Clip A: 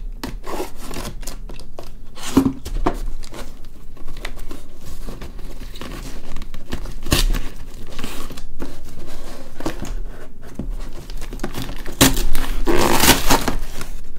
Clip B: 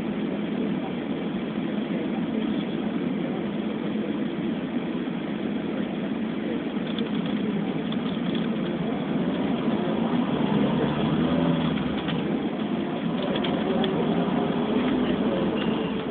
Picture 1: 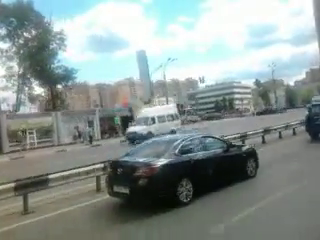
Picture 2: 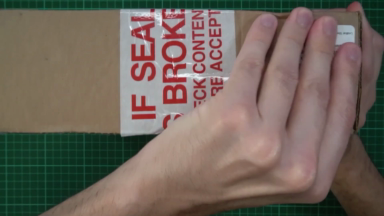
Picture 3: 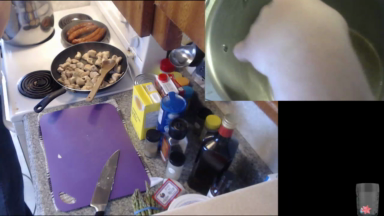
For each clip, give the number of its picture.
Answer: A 2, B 1